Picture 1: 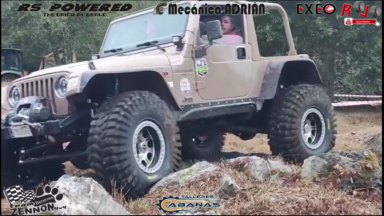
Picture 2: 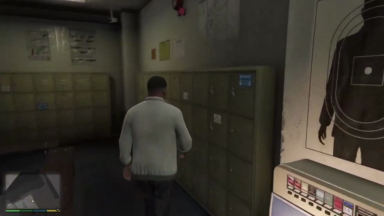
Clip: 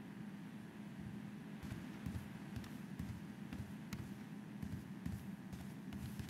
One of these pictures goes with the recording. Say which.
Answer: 2